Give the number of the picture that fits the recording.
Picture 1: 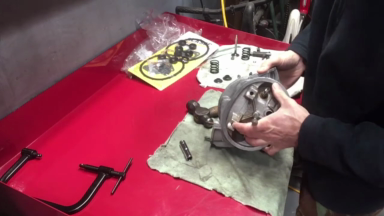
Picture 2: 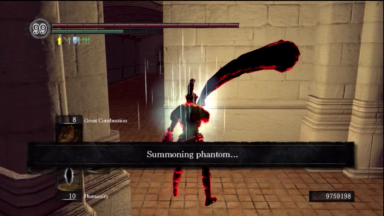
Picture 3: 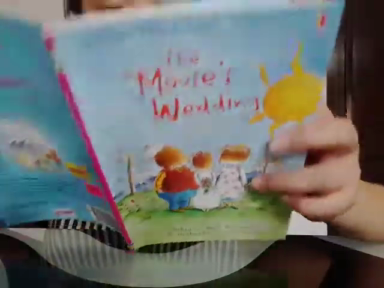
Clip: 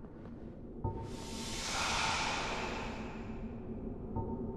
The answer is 2